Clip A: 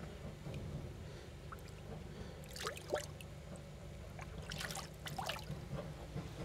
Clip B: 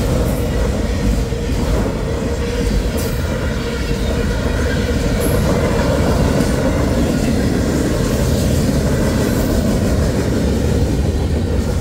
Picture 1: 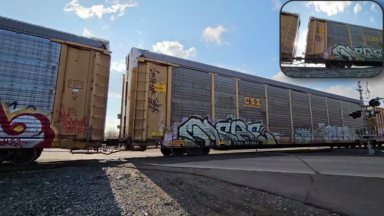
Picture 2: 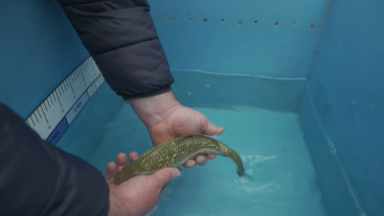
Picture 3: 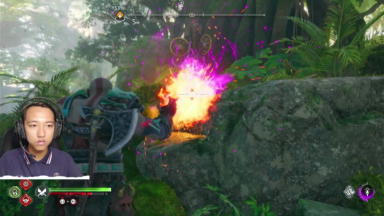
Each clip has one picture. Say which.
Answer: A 2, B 1